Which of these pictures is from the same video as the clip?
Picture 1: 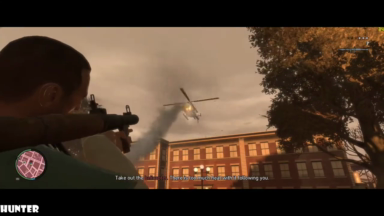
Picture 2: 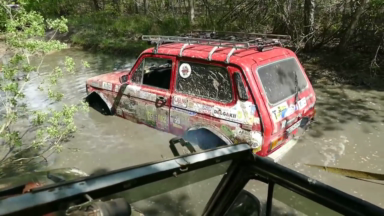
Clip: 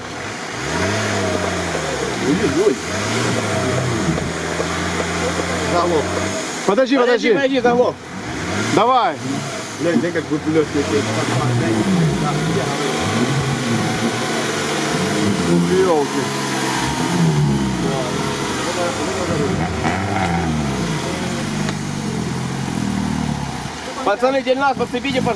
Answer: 2